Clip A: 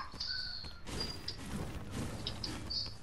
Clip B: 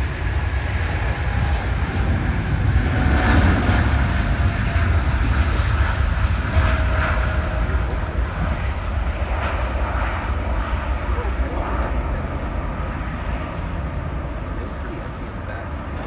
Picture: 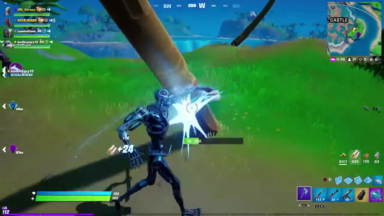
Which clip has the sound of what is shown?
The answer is A